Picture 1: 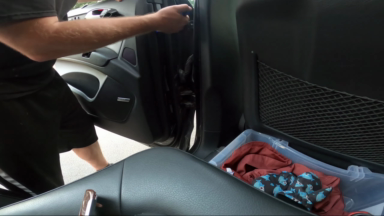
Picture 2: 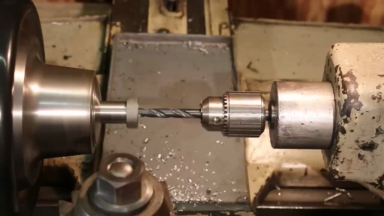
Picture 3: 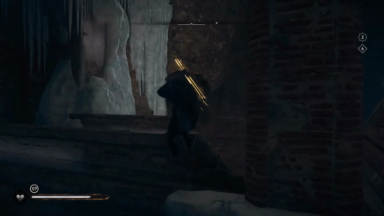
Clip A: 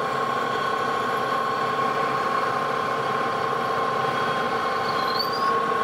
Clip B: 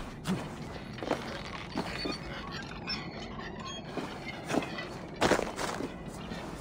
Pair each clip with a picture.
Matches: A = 2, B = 3